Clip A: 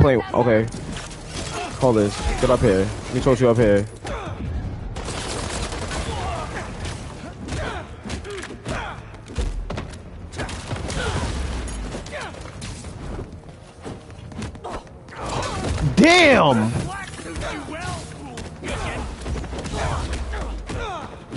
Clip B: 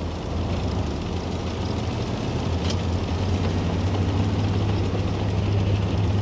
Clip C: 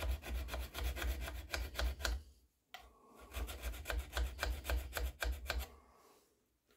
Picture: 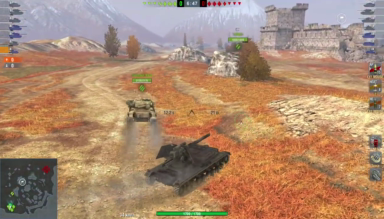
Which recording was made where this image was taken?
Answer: B